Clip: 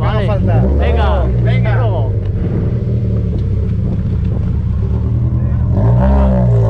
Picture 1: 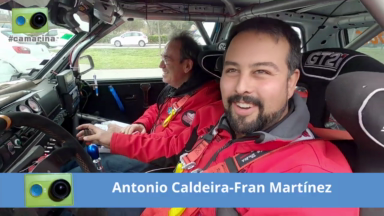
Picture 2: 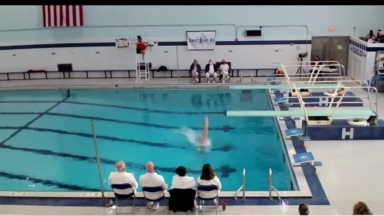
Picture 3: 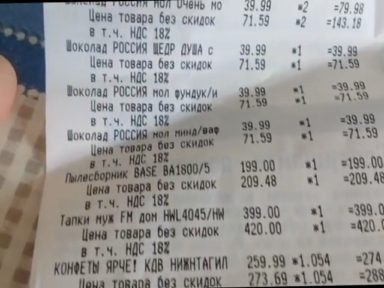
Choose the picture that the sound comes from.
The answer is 1